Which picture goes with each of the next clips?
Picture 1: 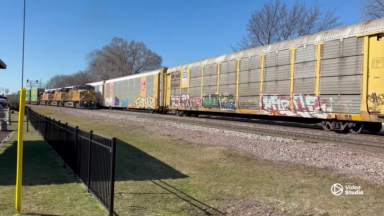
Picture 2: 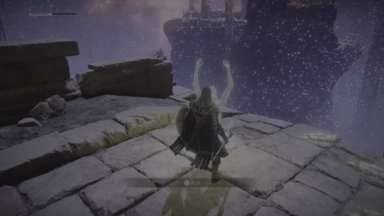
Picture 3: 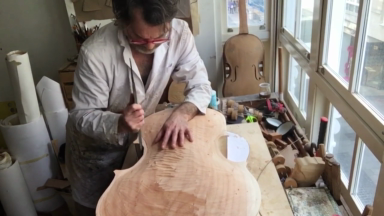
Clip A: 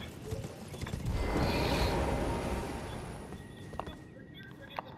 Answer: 2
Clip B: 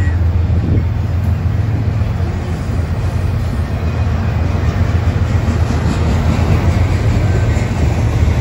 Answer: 1